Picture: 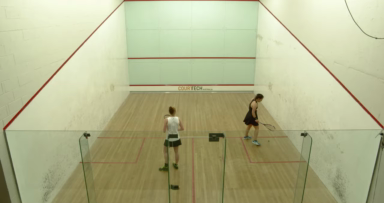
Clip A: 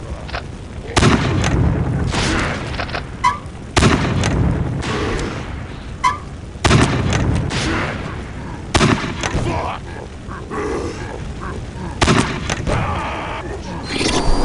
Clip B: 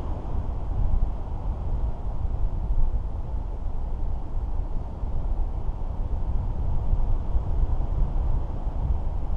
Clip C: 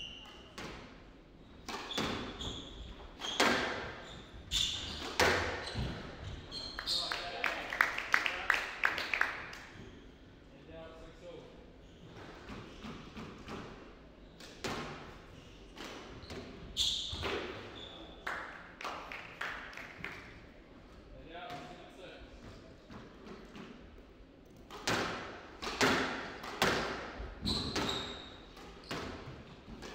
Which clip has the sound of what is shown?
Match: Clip C